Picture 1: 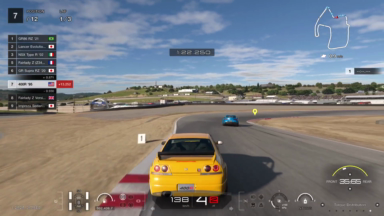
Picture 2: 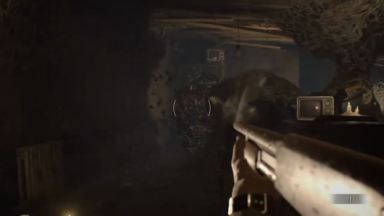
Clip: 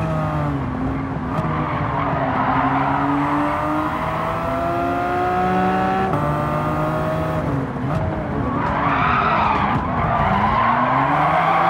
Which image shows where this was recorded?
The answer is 1